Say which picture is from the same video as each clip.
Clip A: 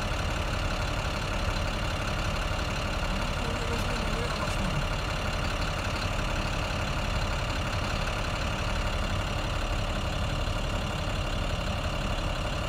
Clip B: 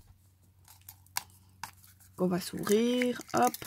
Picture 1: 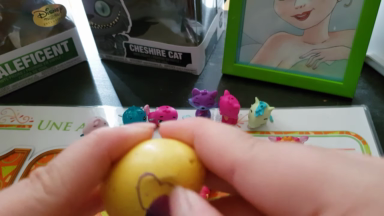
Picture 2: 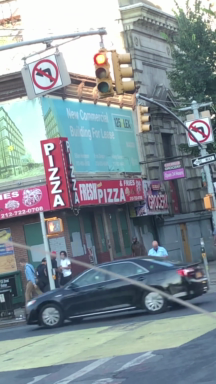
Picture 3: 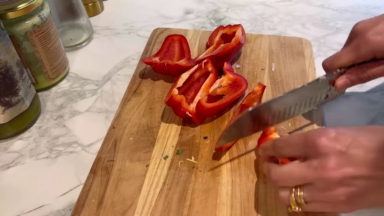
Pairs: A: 2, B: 1